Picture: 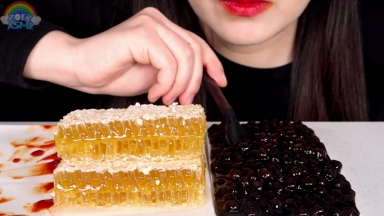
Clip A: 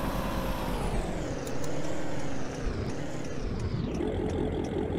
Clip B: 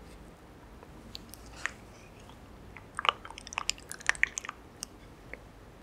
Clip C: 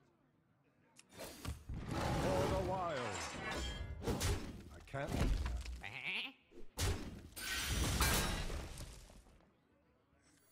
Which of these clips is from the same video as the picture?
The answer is B